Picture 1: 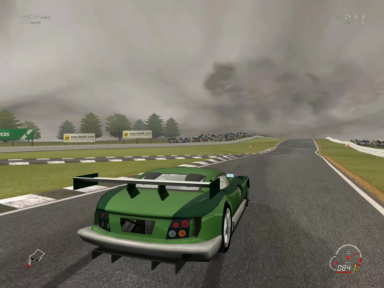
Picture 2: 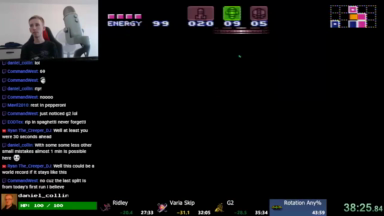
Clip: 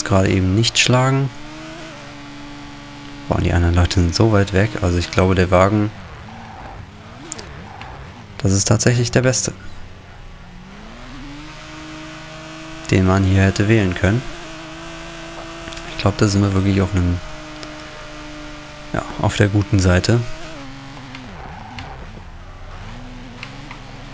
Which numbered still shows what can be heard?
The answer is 1